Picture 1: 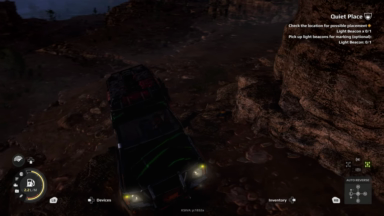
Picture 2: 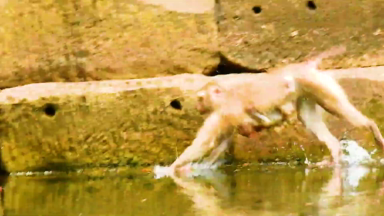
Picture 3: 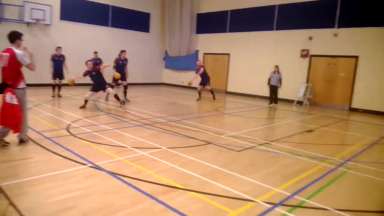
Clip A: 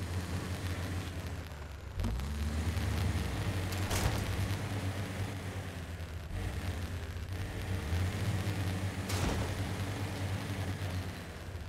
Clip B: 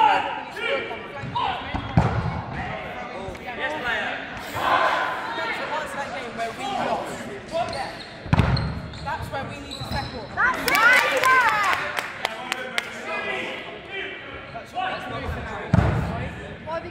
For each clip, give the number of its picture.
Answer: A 1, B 3